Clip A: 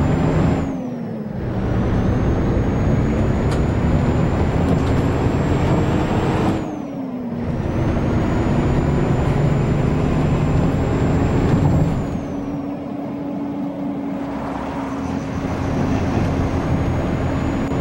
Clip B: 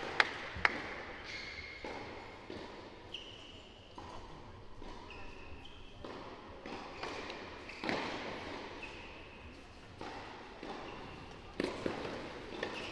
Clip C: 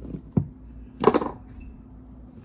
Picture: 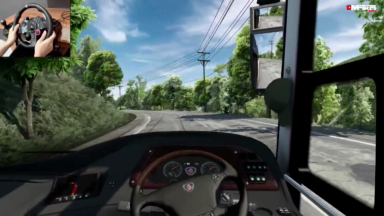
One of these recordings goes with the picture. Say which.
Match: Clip A